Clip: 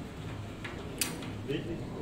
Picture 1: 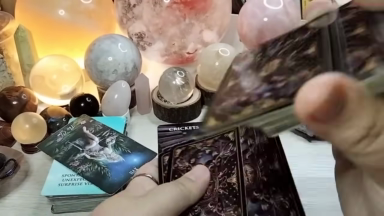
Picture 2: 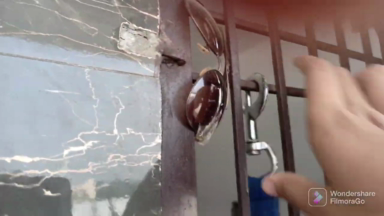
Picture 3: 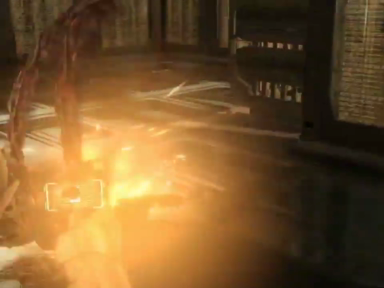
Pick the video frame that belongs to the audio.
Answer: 2